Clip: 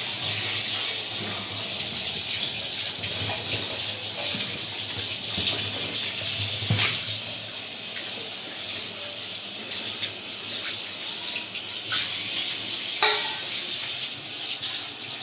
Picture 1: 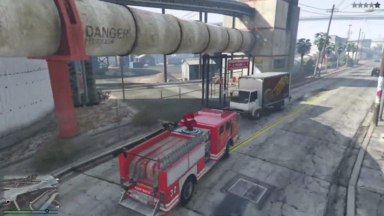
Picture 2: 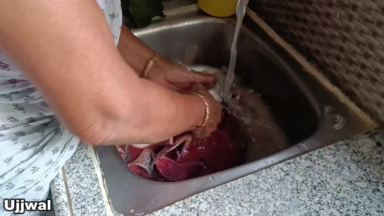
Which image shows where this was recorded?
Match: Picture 2